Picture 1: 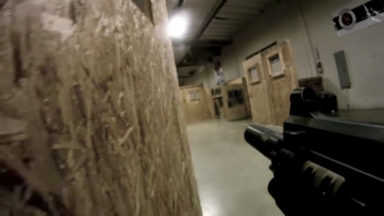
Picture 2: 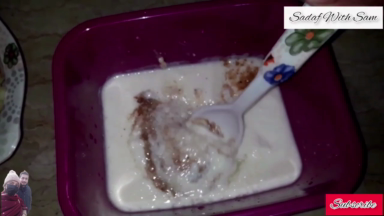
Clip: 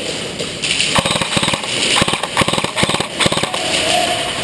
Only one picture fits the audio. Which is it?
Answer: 1